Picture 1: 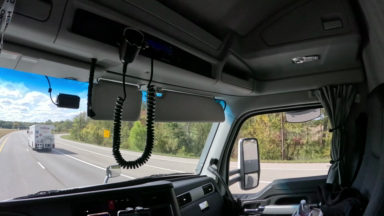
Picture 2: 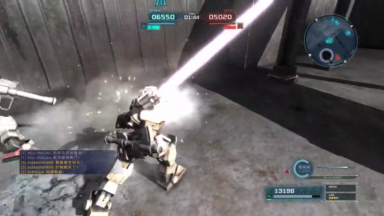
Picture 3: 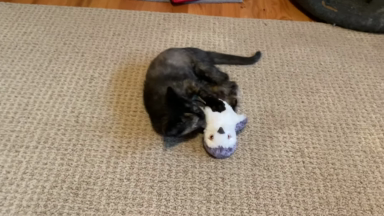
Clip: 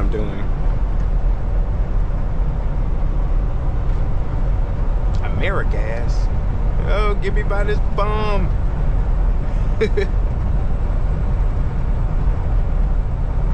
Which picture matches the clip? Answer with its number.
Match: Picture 1